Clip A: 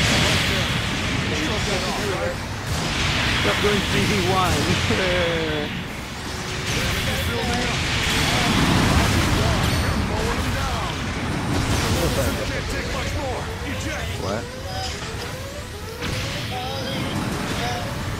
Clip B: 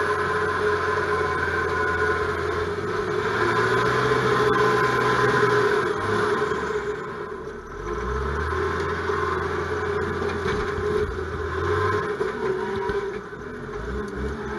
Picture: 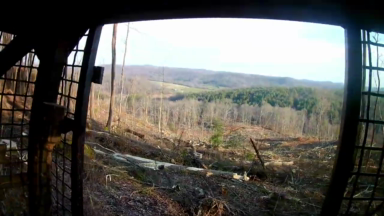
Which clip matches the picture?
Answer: B